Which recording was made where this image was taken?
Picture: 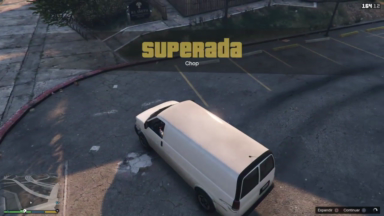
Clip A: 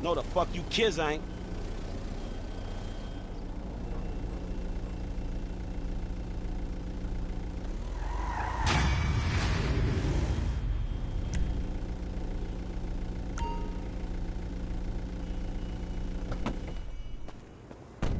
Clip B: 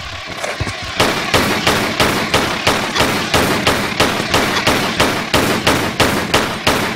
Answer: A